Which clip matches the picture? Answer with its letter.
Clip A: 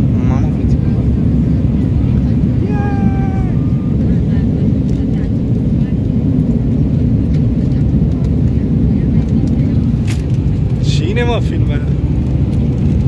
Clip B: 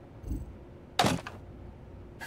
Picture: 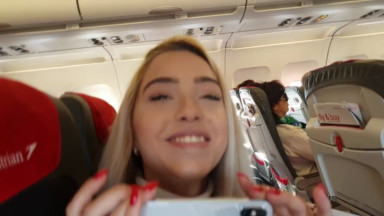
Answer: A